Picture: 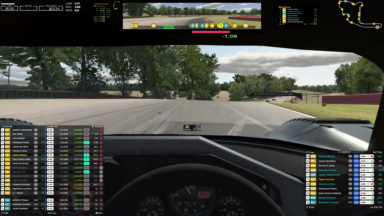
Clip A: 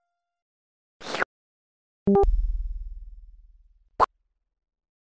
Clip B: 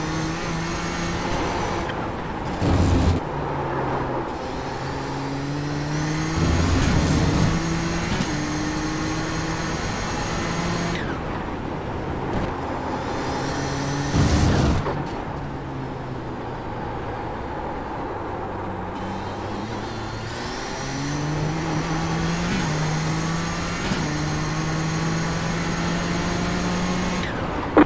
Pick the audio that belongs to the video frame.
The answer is B